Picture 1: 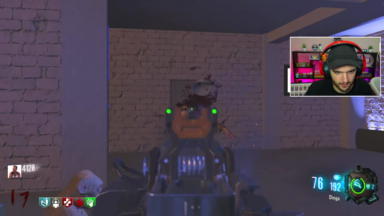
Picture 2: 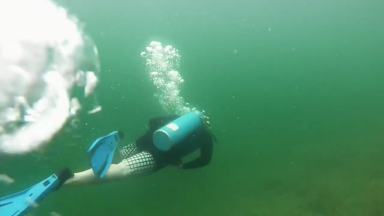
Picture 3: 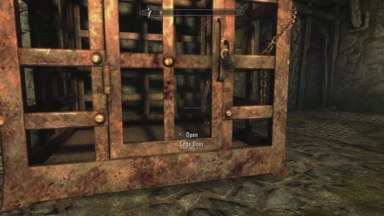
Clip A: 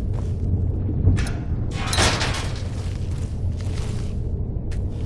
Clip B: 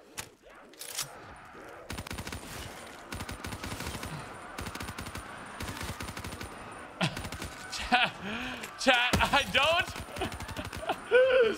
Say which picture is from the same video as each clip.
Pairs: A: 3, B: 1